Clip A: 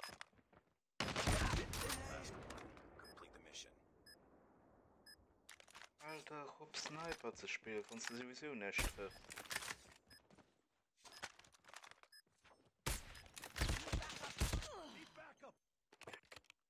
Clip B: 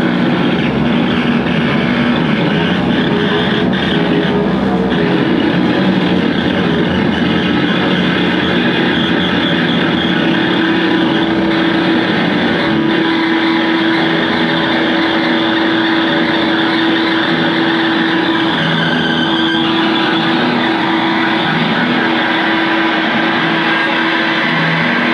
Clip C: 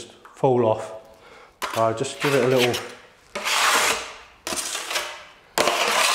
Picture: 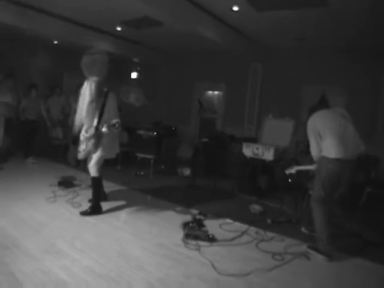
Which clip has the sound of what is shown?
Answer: B